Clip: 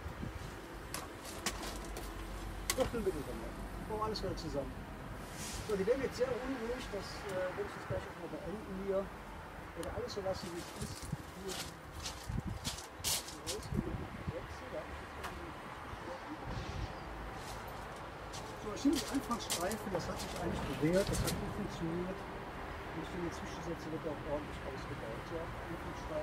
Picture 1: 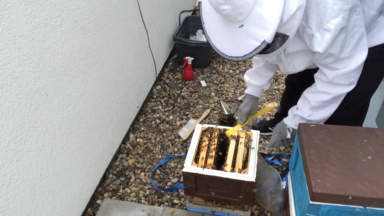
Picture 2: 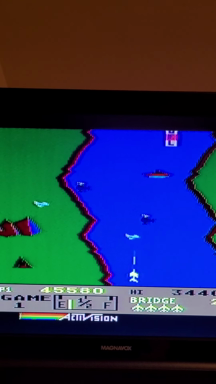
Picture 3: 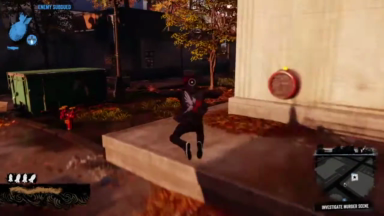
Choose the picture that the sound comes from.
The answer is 1